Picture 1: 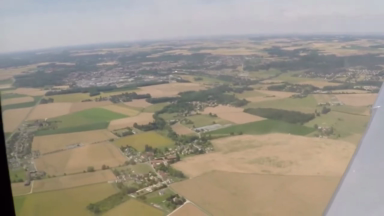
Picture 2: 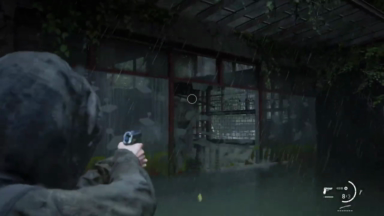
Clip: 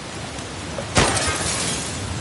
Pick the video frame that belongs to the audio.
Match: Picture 2